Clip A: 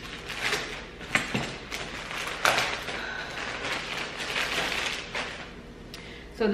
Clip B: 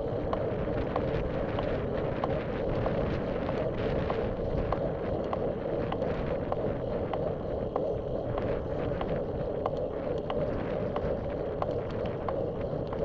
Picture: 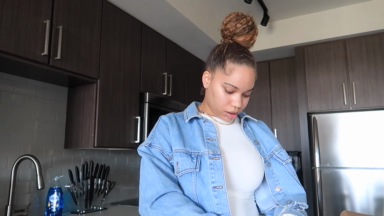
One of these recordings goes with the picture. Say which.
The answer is A